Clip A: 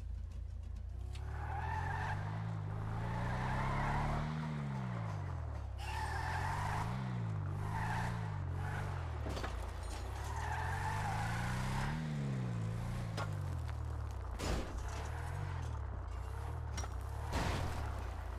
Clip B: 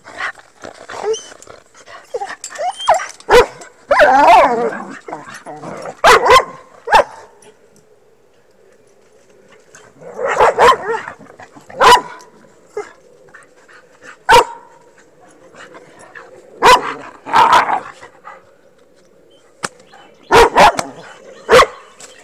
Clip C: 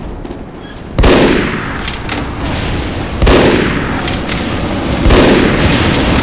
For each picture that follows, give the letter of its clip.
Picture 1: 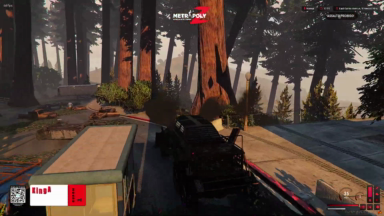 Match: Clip A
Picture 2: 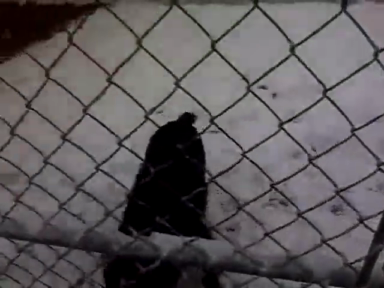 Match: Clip B